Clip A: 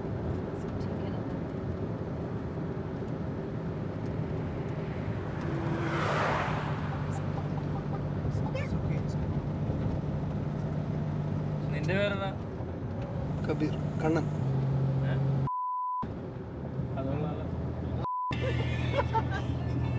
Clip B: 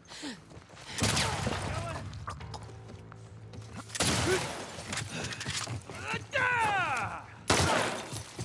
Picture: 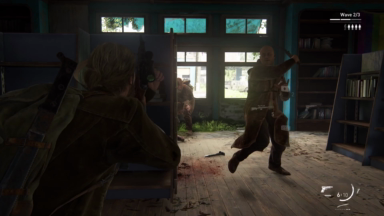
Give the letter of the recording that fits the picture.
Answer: B